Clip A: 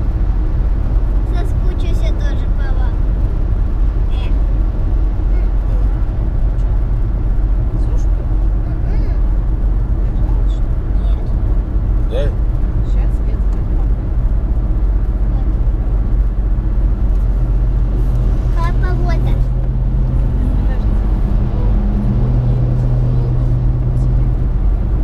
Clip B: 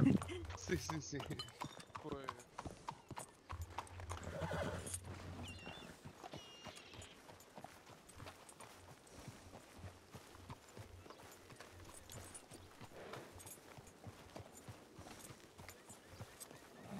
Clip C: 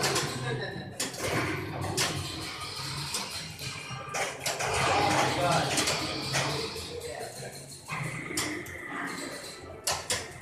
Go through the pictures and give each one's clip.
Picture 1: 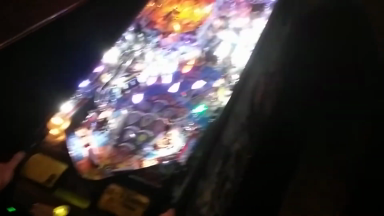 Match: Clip C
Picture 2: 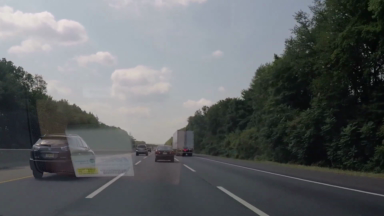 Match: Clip A